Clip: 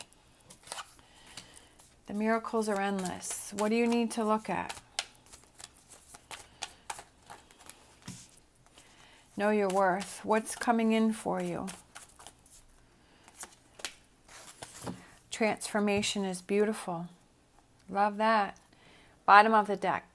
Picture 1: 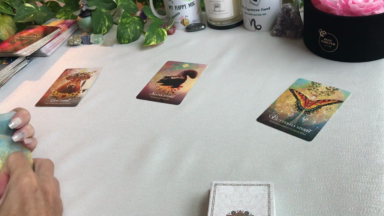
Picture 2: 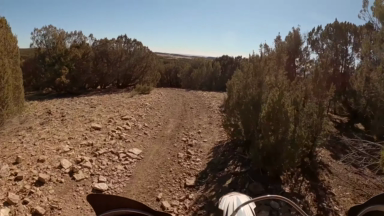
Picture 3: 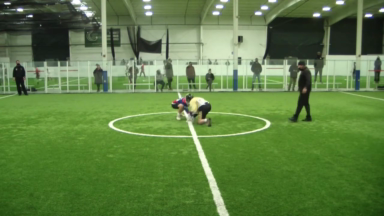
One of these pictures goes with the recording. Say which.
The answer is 1